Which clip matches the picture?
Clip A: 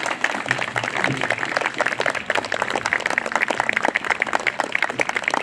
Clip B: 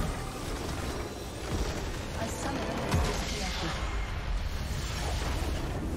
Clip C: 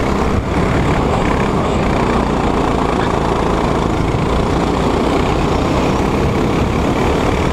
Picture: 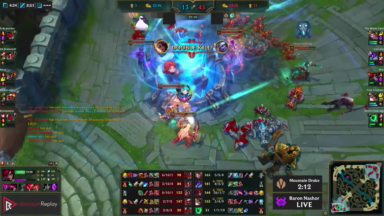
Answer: B